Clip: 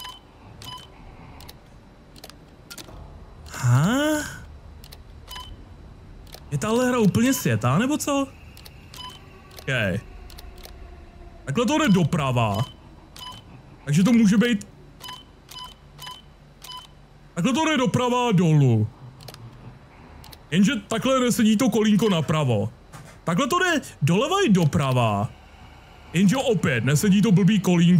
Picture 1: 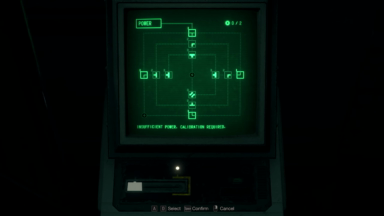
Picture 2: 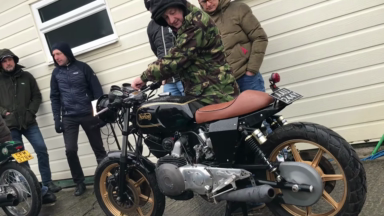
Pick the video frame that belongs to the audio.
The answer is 1